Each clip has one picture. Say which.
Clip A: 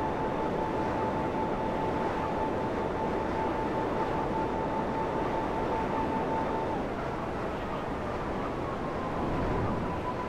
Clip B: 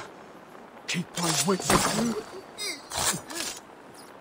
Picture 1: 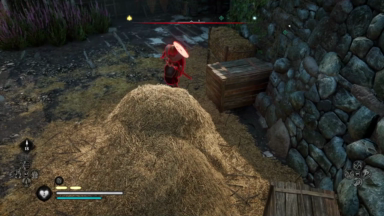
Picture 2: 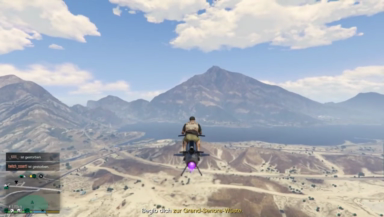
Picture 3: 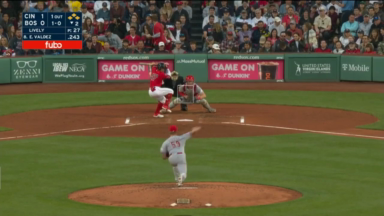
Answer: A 2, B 1